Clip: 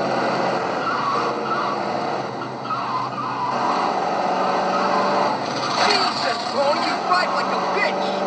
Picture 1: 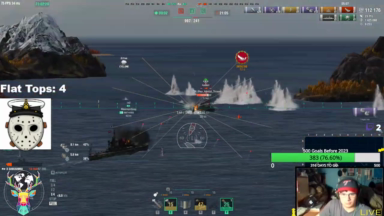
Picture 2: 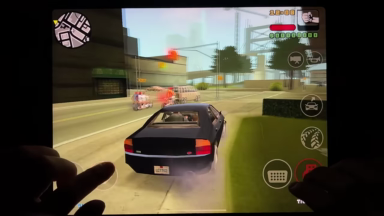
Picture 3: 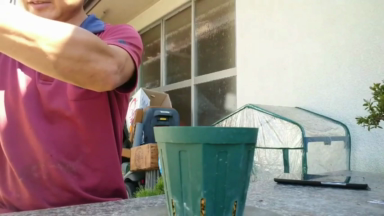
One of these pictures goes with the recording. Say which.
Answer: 2